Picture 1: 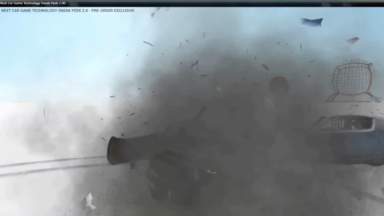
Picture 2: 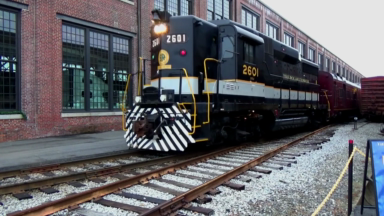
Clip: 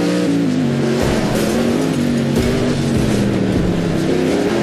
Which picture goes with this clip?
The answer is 1